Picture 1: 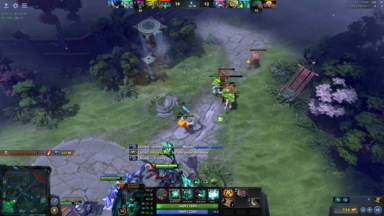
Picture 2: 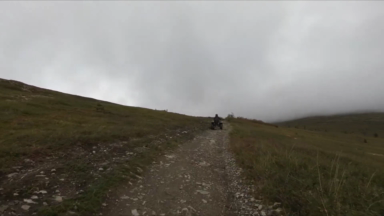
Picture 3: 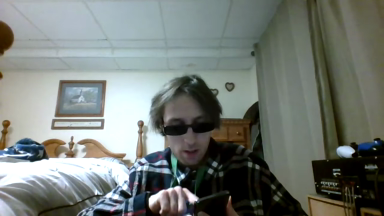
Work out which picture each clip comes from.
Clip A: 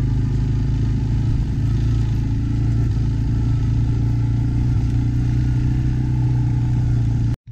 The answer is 2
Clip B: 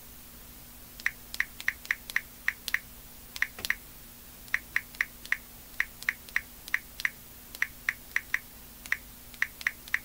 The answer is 3